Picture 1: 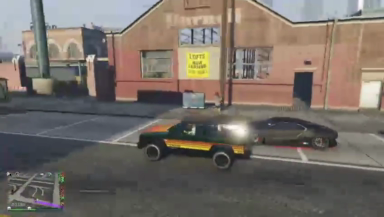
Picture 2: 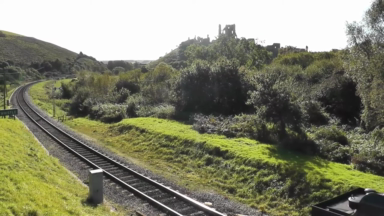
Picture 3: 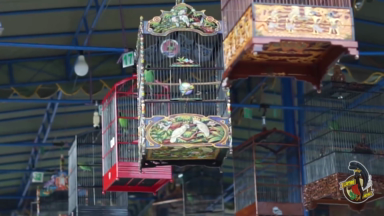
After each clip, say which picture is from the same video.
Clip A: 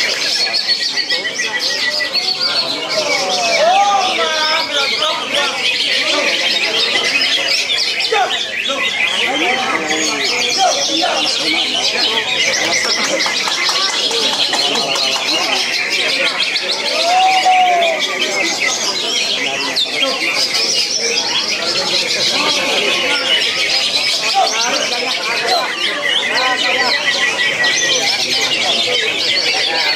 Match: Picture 3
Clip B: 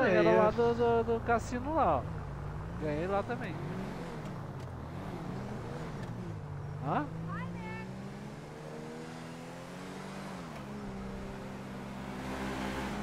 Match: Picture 1